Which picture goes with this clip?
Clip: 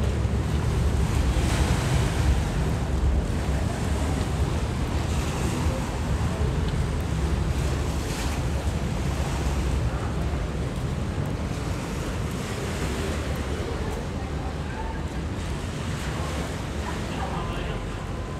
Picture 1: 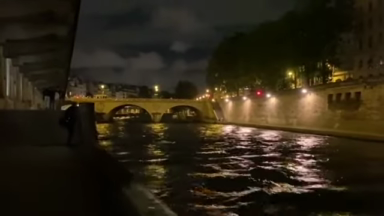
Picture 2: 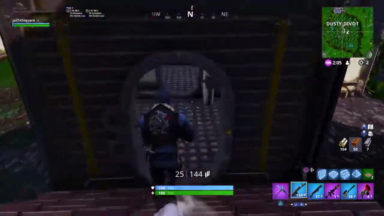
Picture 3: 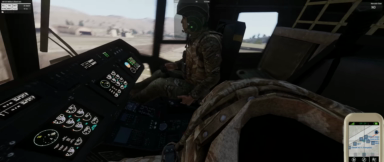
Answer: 1